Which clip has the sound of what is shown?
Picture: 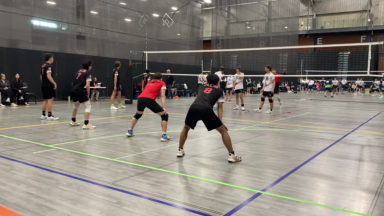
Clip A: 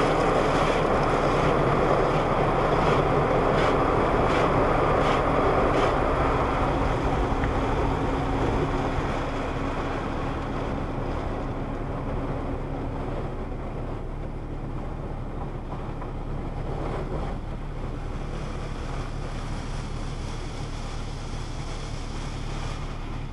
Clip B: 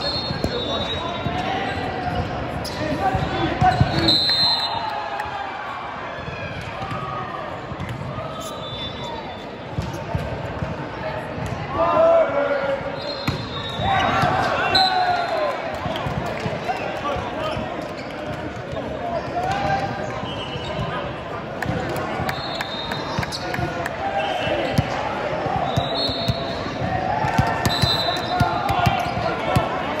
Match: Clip B